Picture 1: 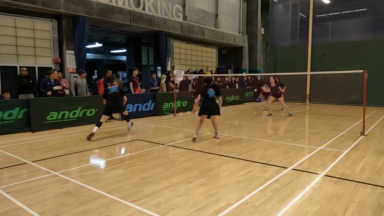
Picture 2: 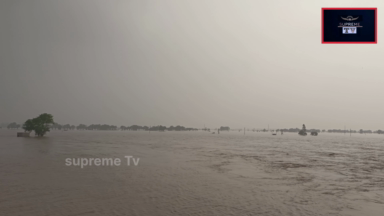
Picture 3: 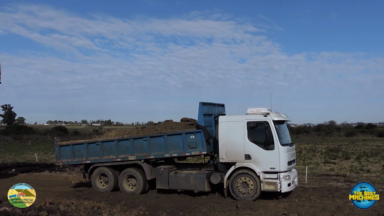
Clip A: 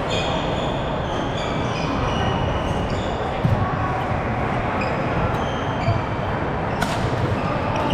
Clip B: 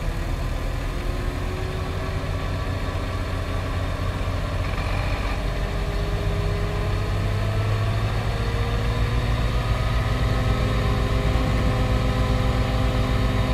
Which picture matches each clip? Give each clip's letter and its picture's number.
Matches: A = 1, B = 3